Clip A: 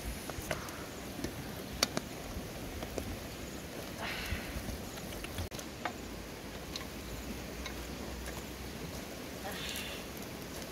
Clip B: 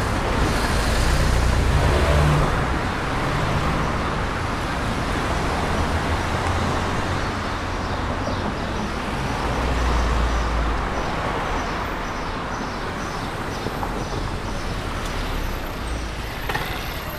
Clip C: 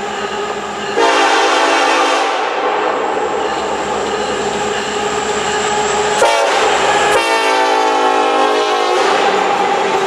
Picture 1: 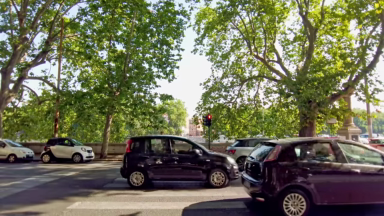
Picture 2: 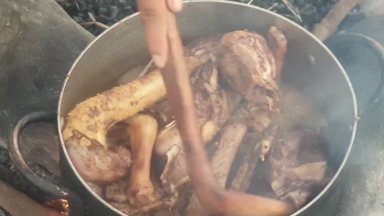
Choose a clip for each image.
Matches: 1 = B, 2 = A